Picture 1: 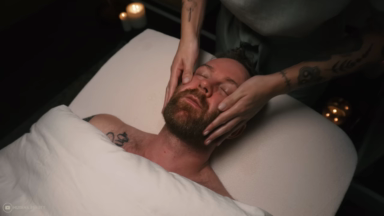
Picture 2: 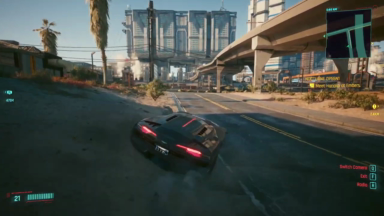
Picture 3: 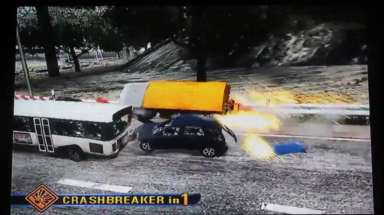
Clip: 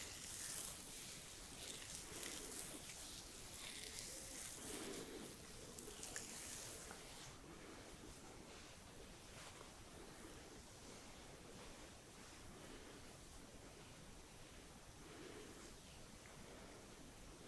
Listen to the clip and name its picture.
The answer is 1